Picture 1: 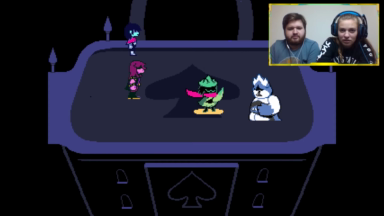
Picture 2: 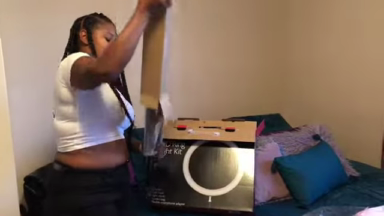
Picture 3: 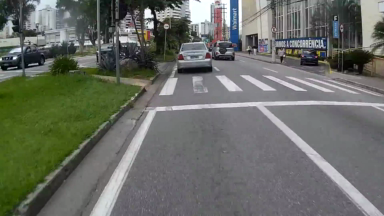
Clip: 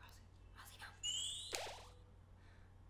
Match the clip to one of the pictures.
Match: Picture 1